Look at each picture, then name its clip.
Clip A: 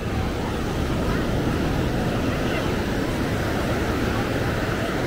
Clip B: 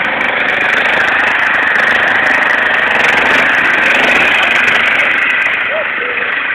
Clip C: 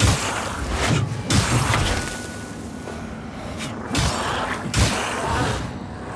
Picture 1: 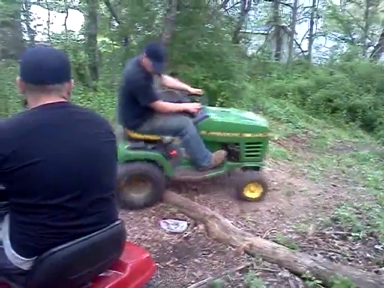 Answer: B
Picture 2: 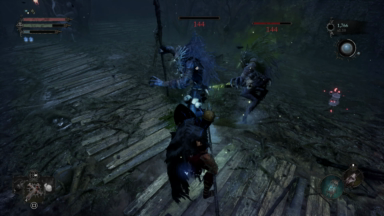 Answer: C